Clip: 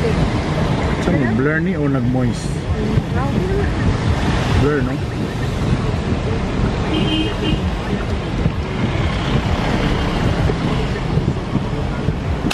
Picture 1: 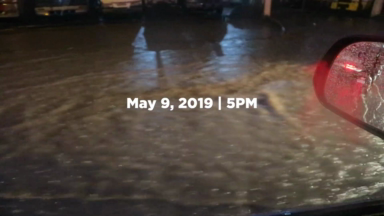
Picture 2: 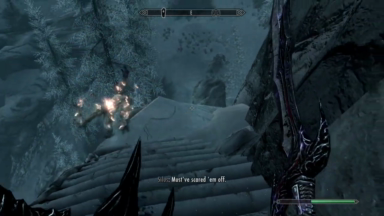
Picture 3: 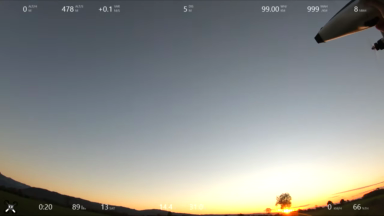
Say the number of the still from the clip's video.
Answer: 1